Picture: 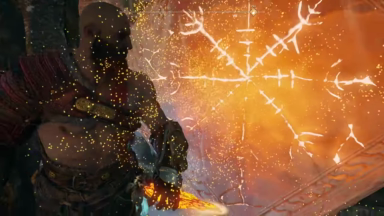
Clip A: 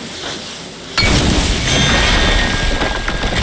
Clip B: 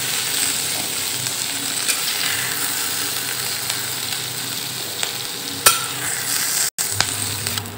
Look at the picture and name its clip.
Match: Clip A